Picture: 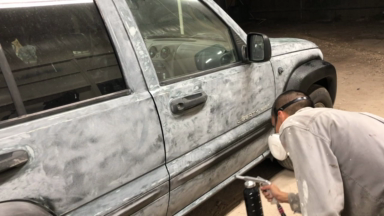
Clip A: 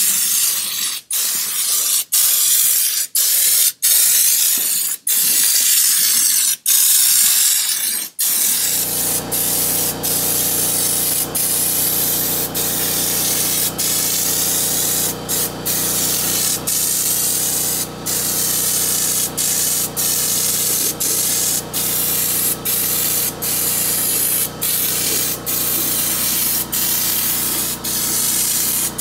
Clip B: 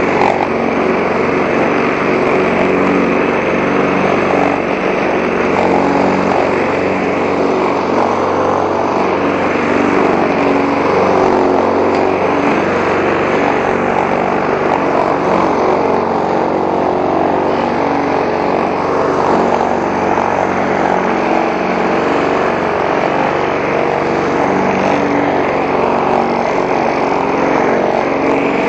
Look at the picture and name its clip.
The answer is A